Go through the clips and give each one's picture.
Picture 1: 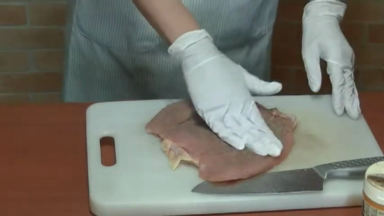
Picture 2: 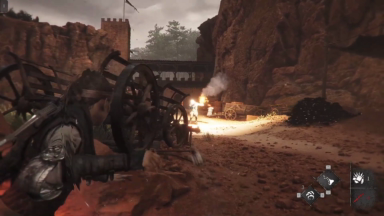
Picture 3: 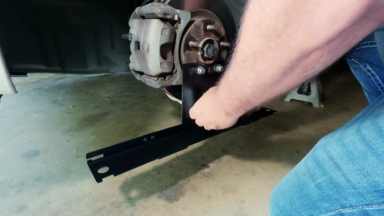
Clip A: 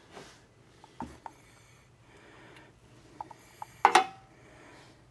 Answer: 3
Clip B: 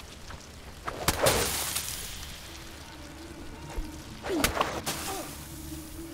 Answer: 2